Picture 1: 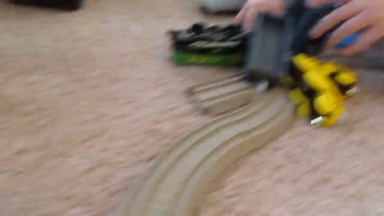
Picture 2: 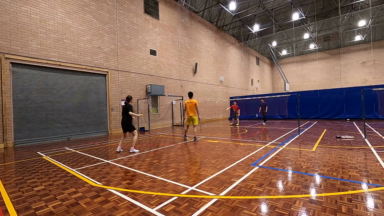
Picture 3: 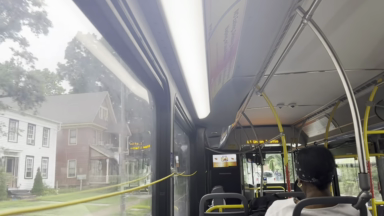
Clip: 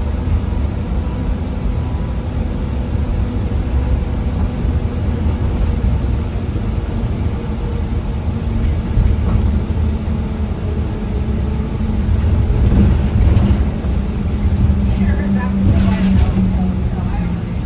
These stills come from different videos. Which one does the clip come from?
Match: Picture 3